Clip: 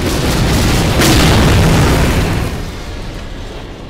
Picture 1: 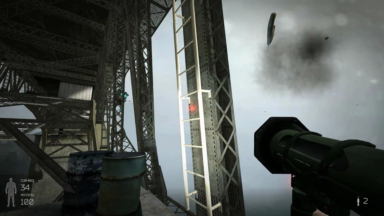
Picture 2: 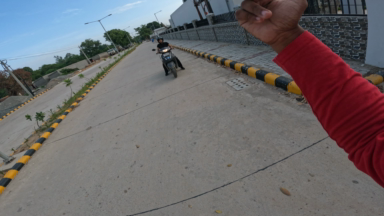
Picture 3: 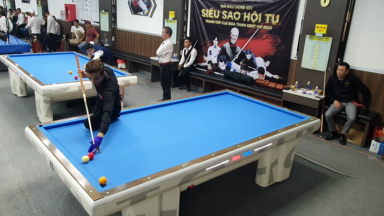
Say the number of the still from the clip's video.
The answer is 1